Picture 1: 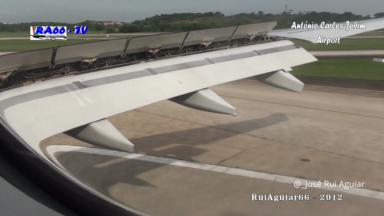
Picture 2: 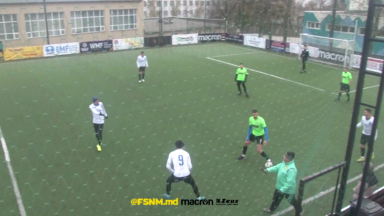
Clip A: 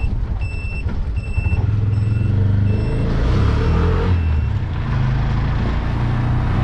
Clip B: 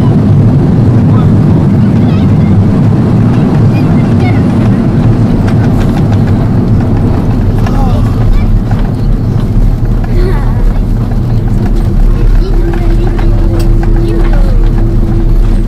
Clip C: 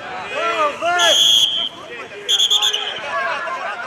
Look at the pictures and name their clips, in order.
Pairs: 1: B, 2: C